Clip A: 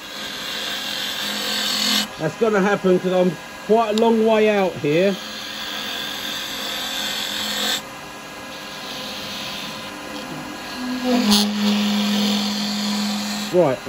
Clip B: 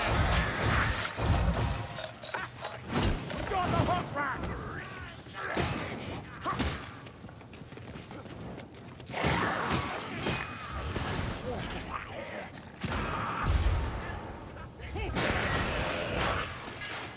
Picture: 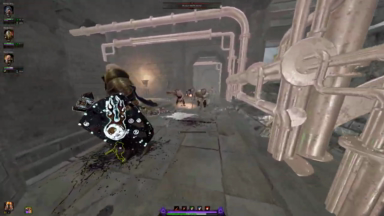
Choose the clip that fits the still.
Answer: B